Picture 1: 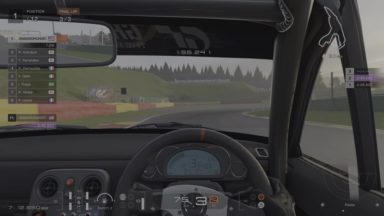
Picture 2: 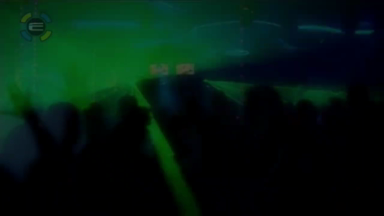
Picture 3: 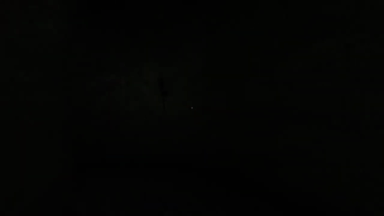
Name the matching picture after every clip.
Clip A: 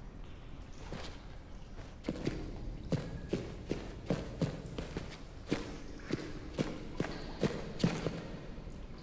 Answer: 3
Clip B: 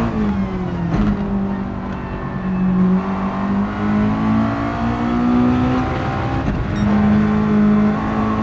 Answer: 1